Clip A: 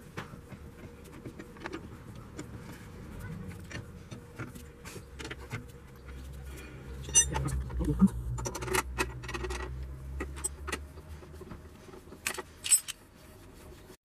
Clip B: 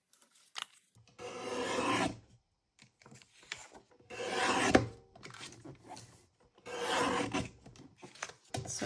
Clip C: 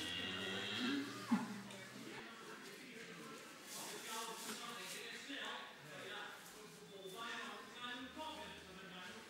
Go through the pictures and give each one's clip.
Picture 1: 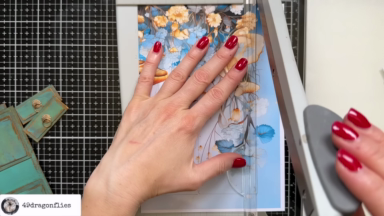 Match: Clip B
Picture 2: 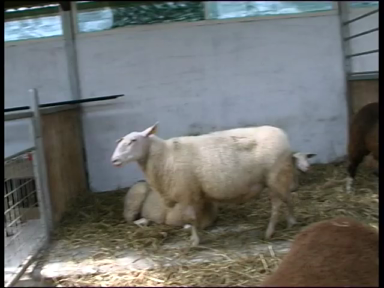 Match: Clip C